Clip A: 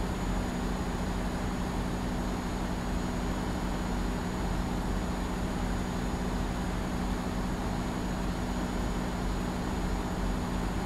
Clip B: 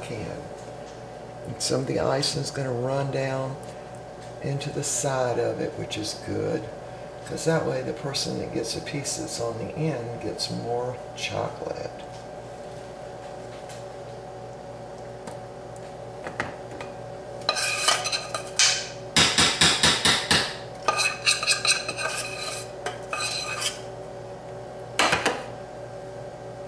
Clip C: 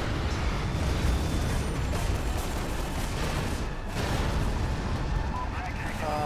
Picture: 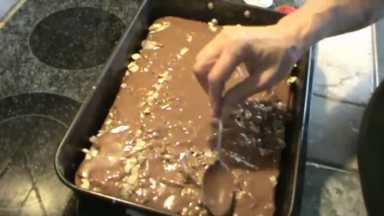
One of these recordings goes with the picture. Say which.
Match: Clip B